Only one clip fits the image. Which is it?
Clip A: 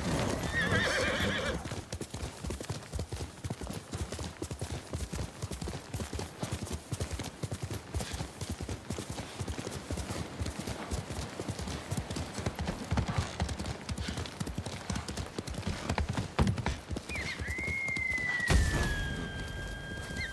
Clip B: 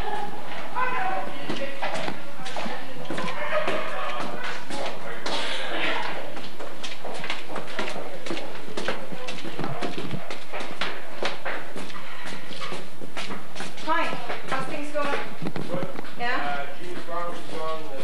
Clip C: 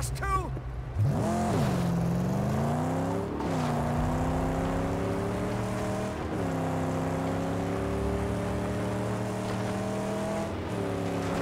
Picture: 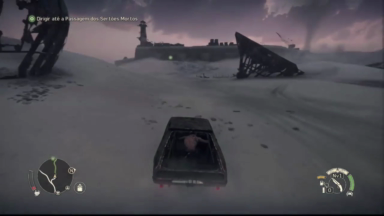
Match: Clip C